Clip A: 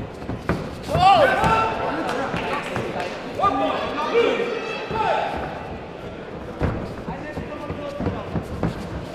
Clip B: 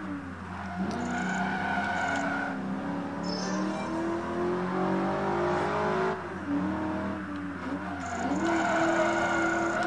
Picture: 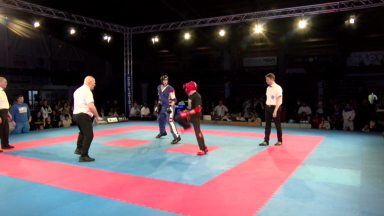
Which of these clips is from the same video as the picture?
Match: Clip A